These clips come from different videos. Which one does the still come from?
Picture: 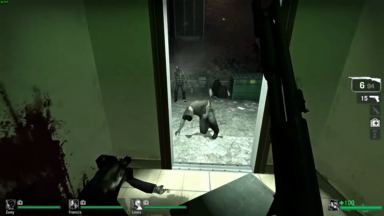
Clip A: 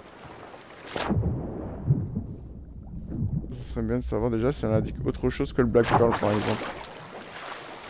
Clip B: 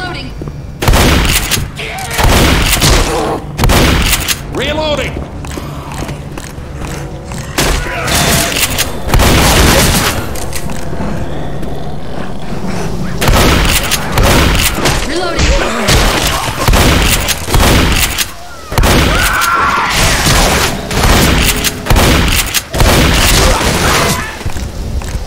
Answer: B